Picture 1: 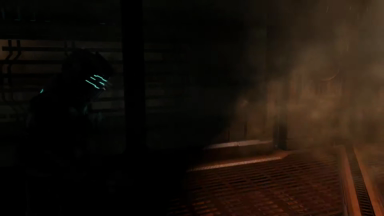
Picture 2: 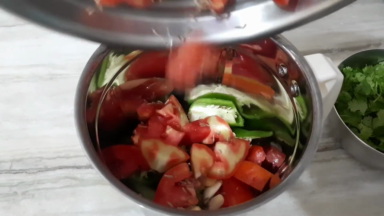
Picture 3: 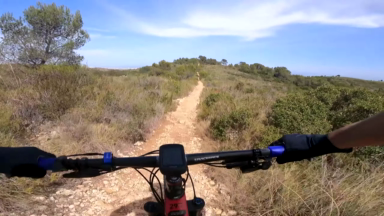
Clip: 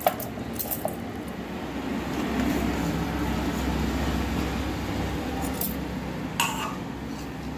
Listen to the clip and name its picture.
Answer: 2